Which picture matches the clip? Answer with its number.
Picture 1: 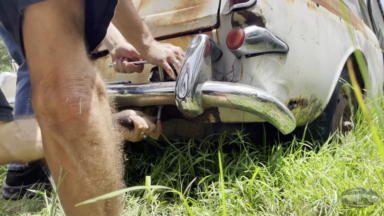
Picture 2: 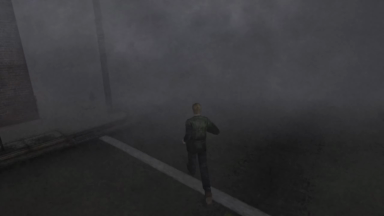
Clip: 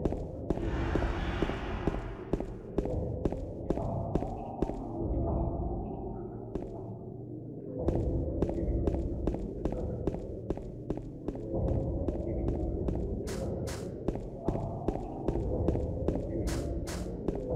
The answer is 2